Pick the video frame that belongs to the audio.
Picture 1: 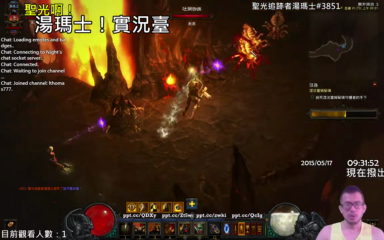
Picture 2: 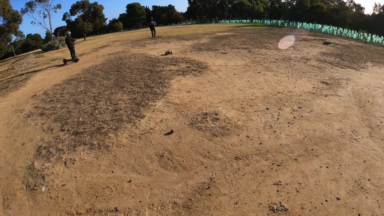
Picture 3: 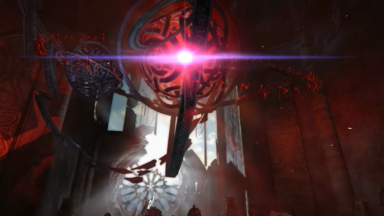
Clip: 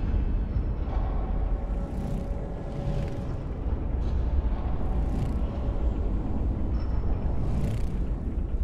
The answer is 3